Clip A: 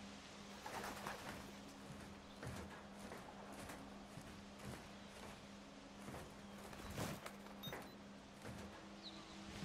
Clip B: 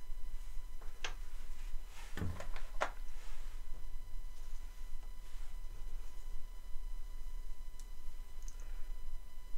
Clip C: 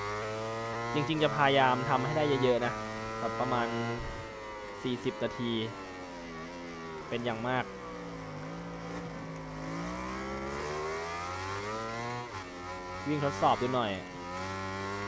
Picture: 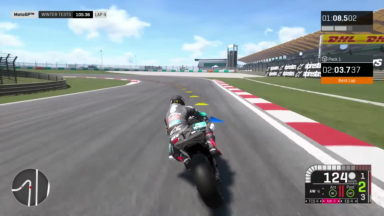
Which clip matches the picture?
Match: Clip C